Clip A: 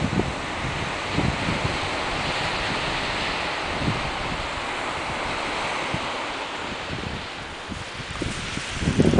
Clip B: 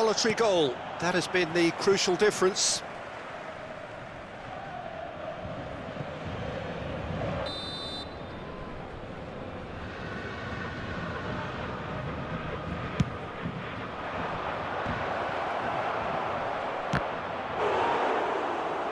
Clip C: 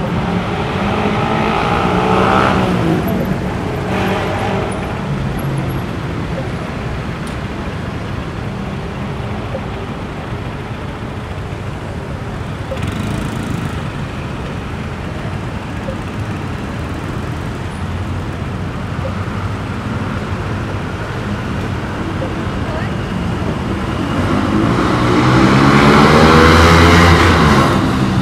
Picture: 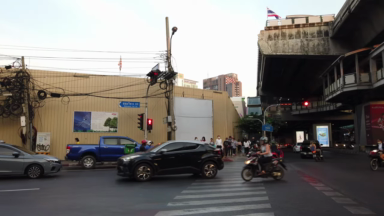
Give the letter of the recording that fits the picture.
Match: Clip C